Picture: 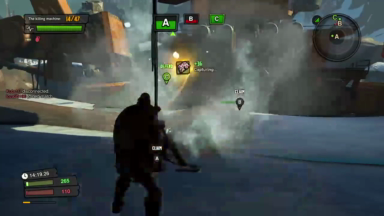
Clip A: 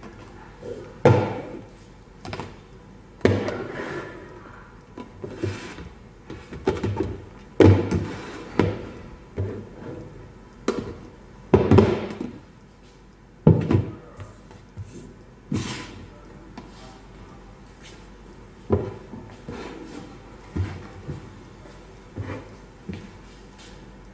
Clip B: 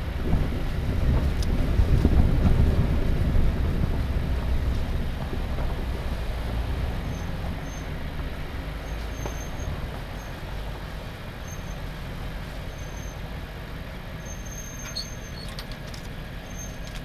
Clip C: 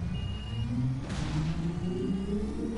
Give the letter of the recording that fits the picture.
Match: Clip C